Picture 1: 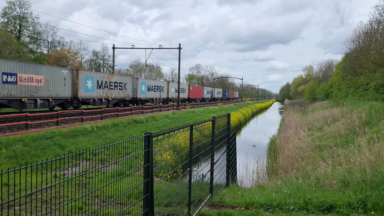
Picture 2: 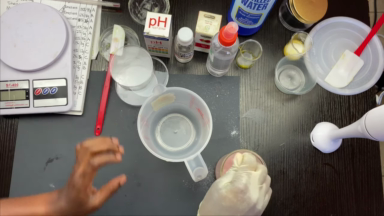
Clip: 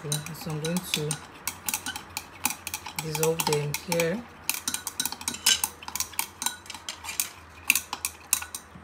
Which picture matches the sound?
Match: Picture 2